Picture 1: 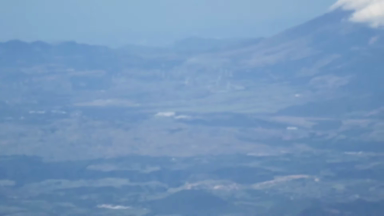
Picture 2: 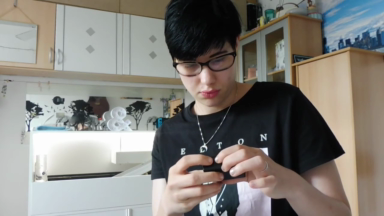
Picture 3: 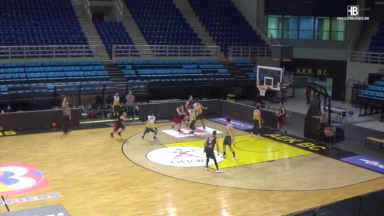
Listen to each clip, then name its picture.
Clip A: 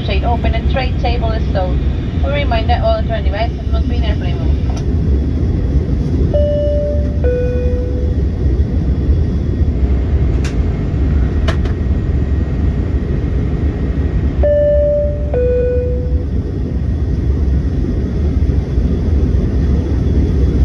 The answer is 1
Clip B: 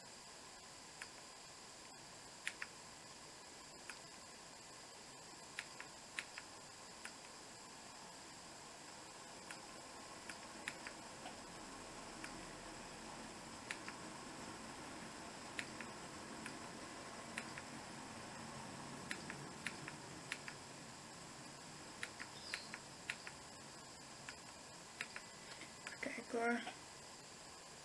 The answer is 2